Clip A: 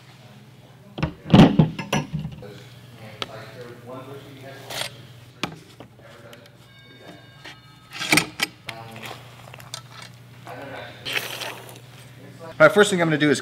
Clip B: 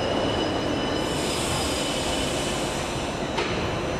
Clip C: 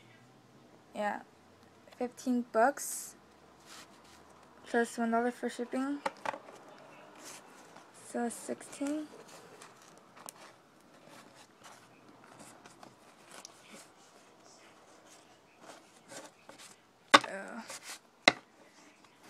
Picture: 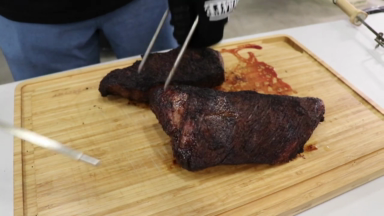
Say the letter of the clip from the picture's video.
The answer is A